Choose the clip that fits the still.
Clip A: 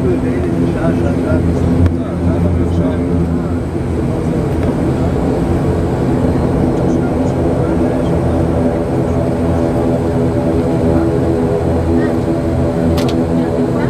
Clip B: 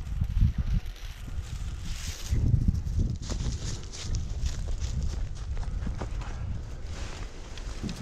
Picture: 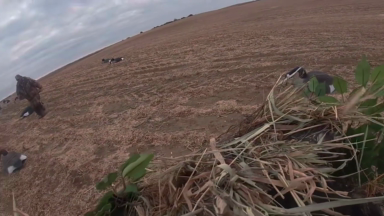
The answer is B